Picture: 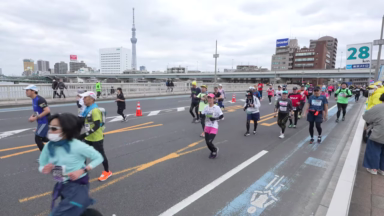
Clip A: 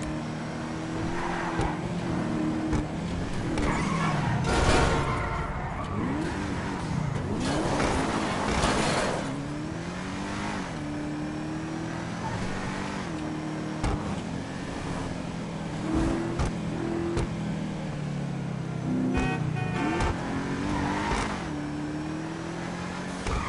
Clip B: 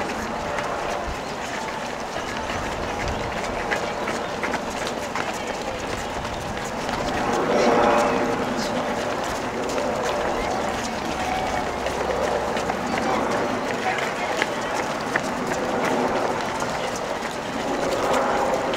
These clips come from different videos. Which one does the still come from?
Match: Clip B